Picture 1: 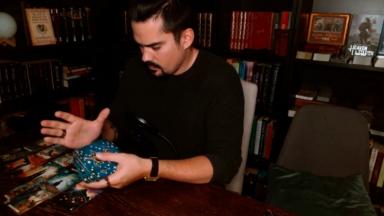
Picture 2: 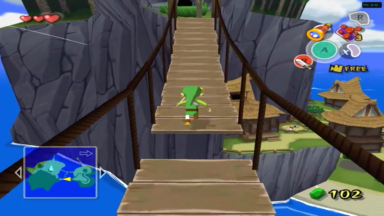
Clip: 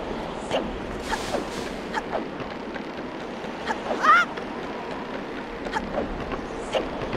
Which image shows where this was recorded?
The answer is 2